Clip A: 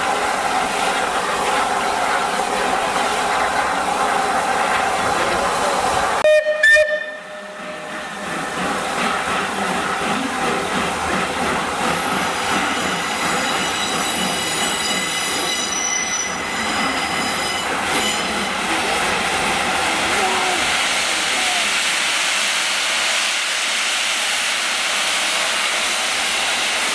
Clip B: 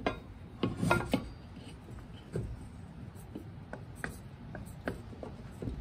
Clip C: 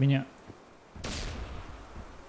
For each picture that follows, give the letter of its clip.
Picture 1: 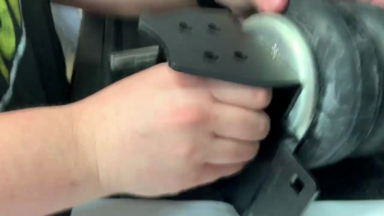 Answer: B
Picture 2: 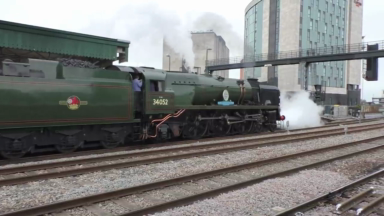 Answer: A